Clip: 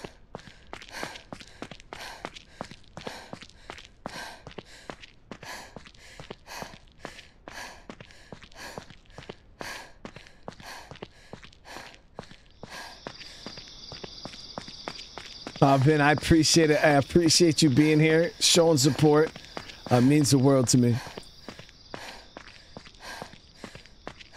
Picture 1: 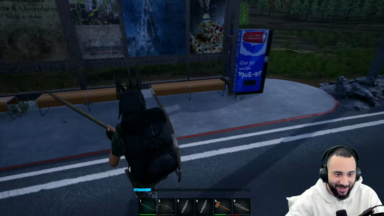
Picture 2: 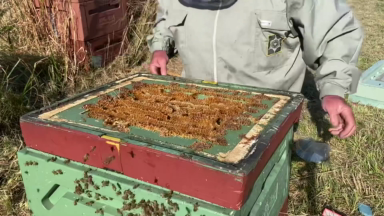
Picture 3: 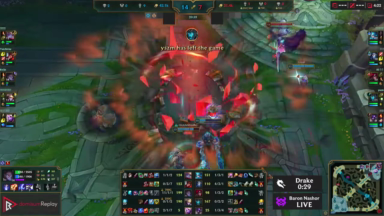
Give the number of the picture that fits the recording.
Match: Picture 1